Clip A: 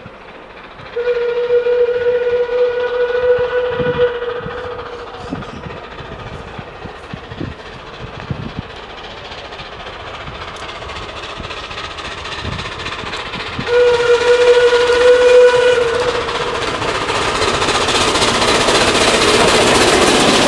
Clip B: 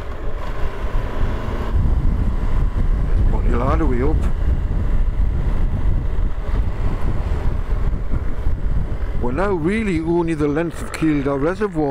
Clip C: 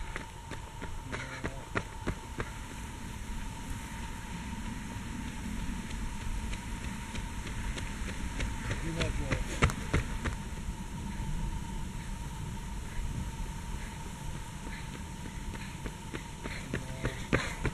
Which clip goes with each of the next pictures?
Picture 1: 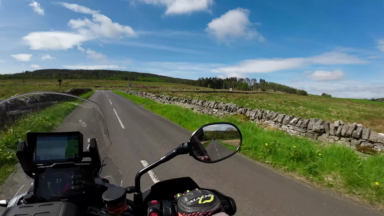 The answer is B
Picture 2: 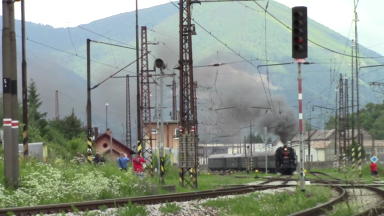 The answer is A